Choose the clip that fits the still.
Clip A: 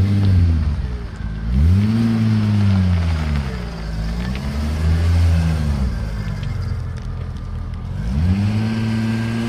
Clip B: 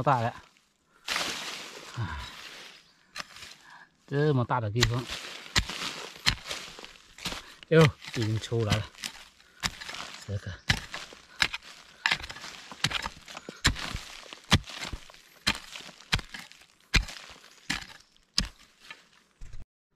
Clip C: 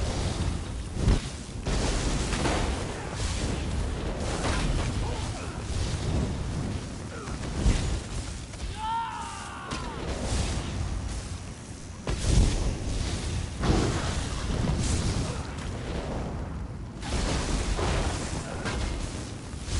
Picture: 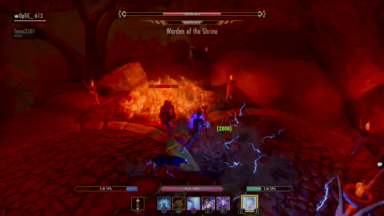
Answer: C